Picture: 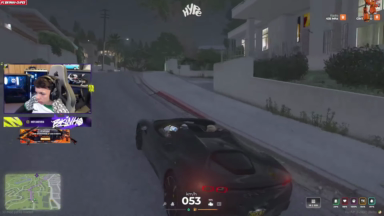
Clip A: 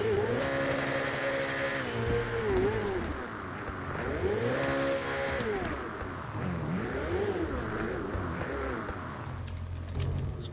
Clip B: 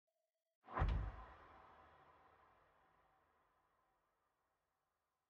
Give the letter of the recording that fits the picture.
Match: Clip A